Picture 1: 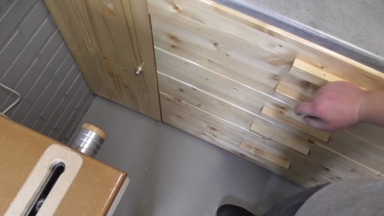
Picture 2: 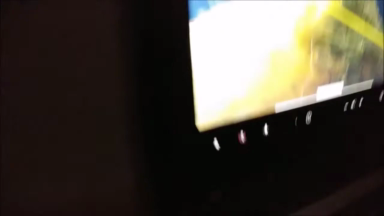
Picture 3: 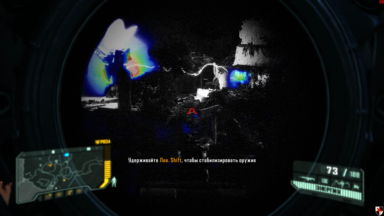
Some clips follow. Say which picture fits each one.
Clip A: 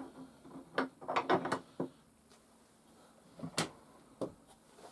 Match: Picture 1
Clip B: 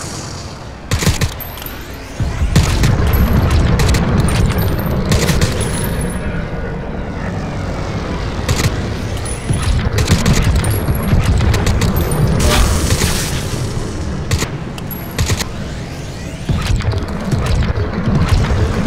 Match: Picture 3